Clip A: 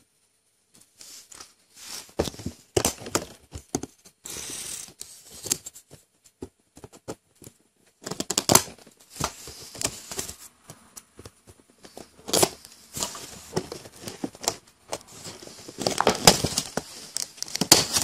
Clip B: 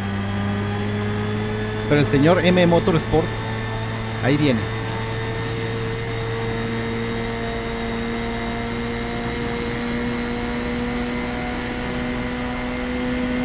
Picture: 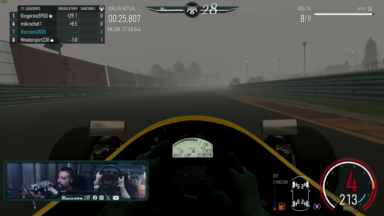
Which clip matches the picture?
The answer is B